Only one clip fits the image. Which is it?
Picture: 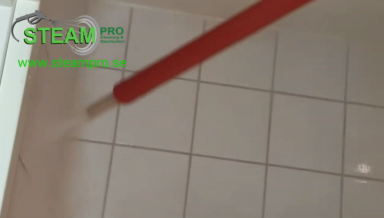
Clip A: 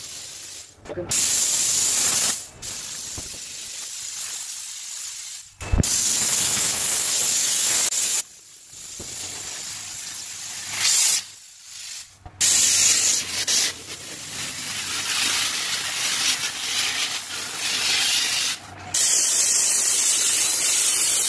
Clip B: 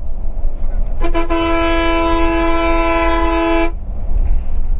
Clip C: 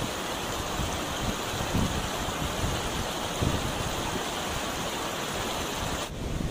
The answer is A